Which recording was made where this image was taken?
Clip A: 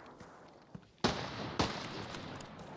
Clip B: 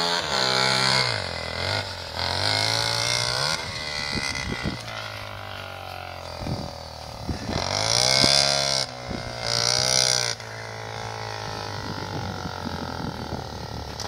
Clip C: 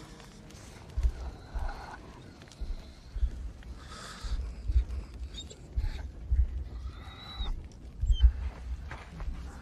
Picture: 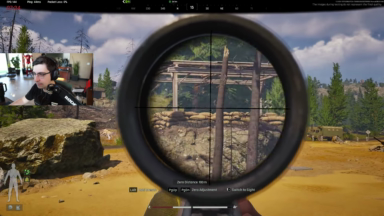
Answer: A